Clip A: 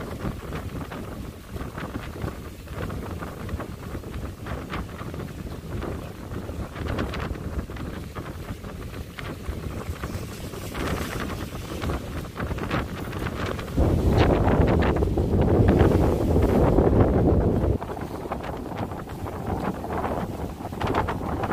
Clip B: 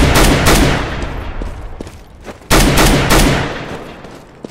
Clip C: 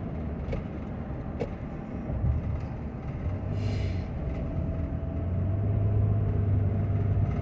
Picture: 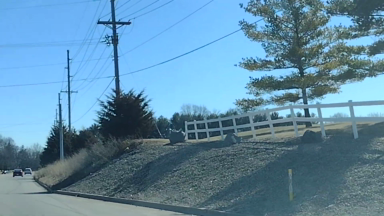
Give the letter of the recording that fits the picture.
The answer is C